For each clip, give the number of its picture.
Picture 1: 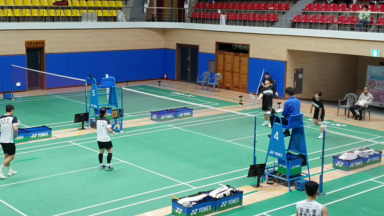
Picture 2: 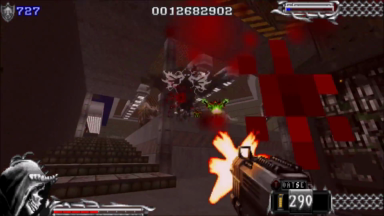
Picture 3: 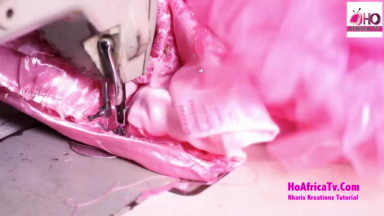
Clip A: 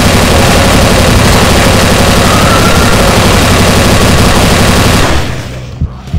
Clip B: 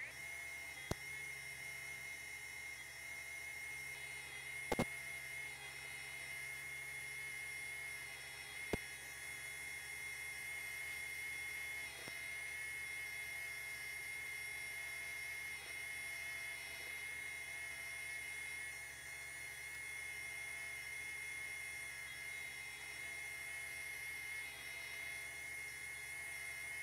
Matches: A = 2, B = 3